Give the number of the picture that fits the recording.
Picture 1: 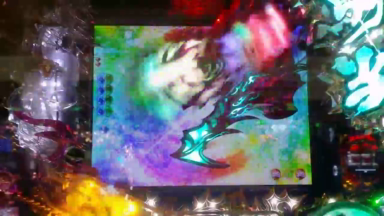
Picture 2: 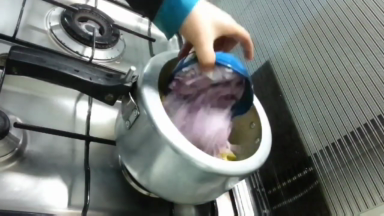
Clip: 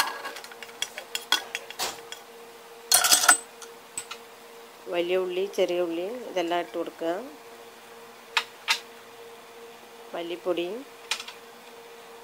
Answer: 2